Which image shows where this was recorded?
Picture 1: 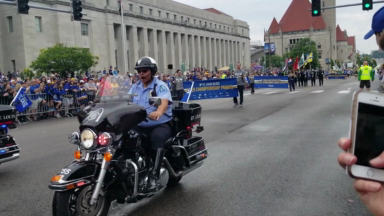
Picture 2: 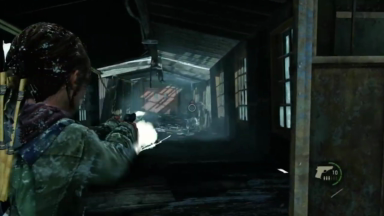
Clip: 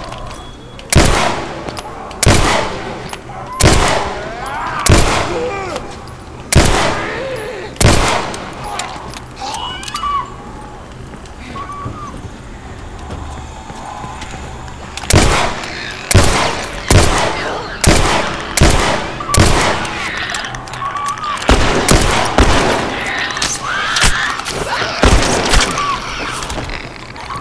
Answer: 2